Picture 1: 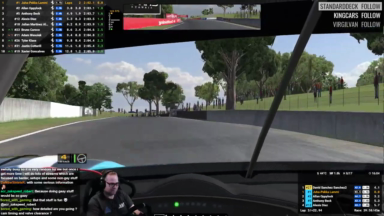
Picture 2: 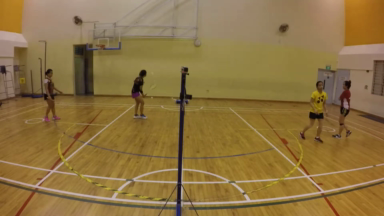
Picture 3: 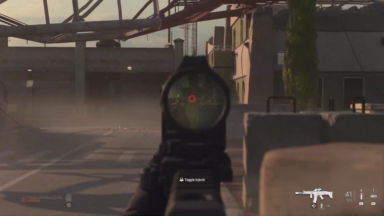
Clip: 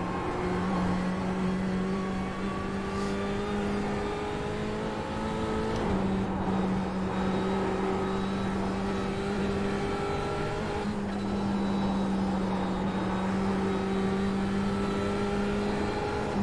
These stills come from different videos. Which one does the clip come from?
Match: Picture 1